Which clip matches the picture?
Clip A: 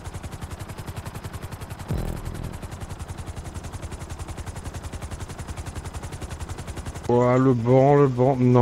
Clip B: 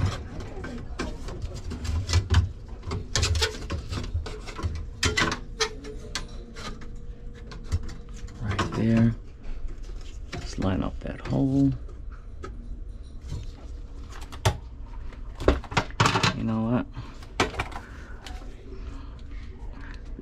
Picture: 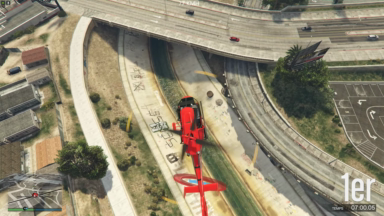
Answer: A